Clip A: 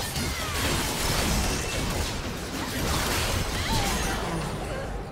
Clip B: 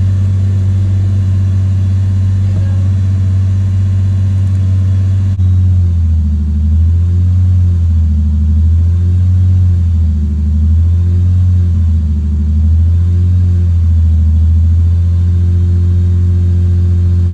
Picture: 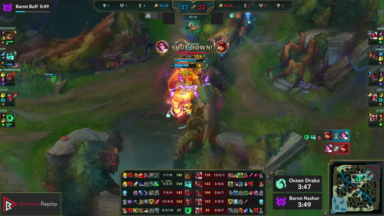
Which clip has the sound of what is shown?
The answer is A